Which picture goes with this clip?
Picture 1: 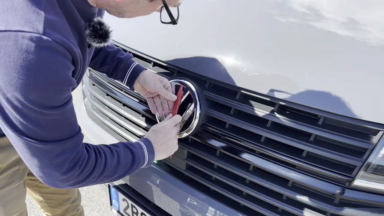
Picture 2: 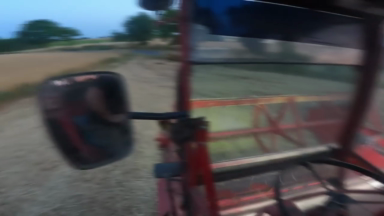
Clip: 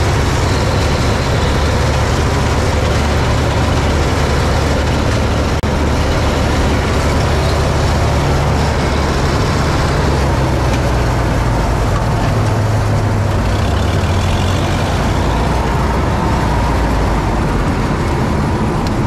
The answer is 2